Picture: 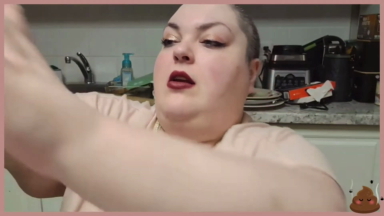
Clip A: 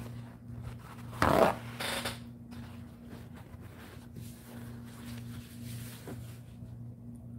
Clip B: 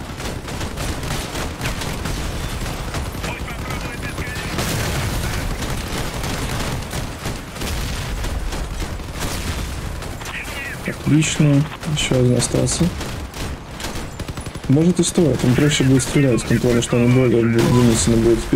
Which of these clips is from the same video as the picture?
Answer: A